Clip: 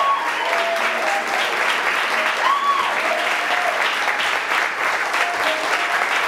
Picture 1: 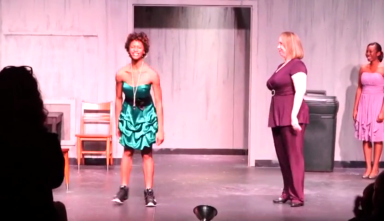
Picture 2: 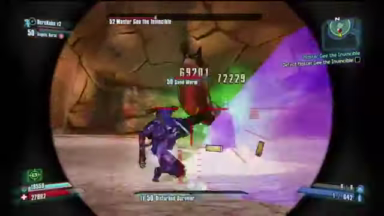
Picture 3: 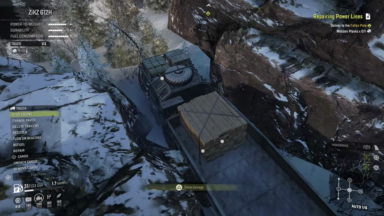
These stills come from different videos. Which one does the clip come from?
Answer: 1